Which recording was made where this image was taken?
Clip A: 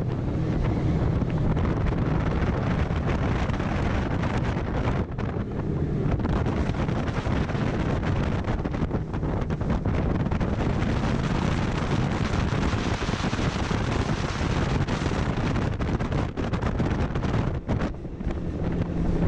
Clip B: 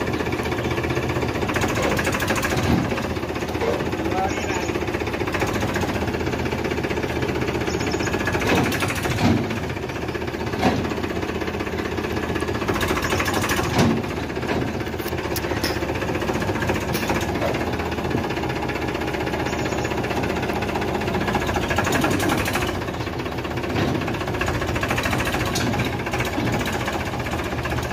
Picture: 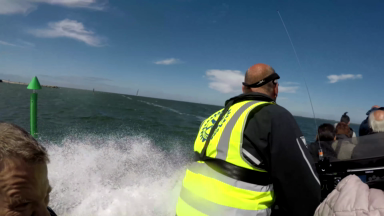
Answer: A